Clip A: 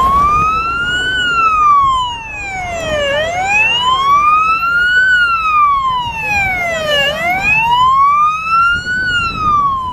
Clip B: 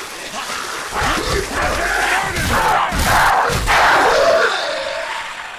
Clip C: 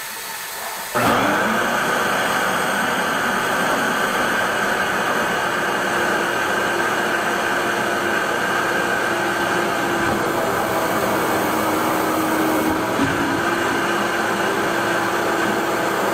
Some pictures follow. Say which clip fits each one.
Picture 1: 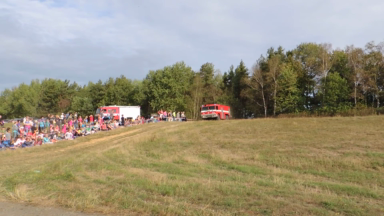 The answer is A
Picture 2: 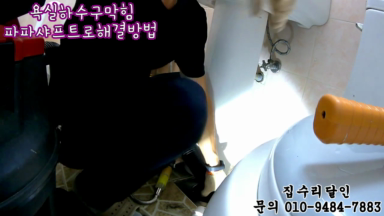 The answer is C